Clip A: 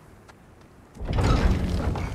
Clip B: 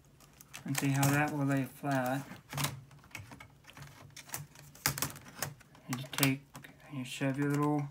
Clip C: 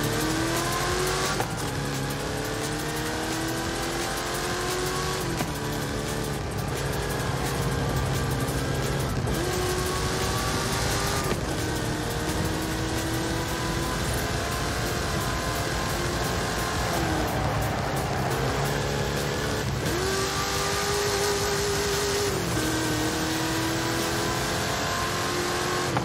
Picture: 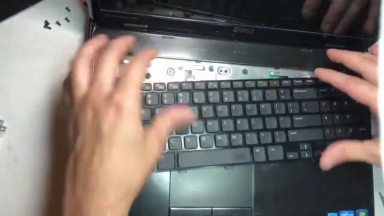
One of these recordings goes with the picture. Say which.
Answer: B